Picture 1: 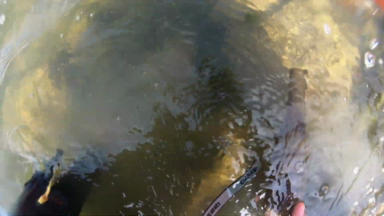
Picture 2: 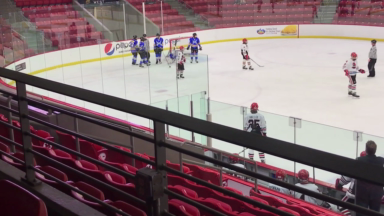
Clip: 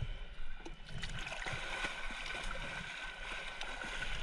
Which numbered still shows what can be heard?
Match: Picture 1